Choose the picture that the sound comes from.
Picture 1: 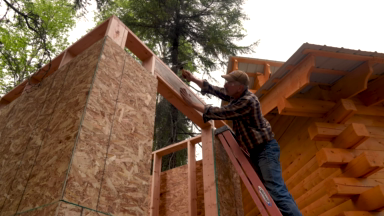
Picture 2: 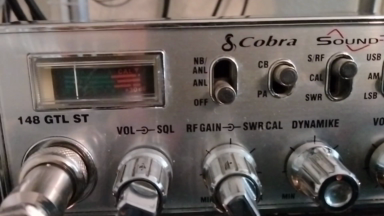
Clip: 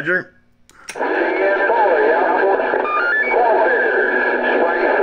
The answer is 2